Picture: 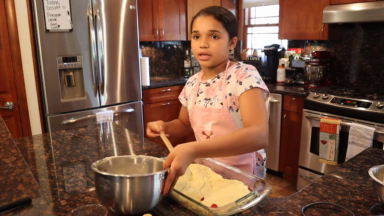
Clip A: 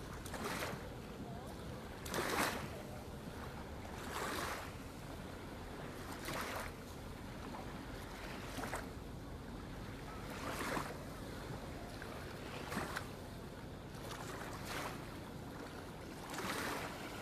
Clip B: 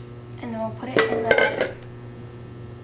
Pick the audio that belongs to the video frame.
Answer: B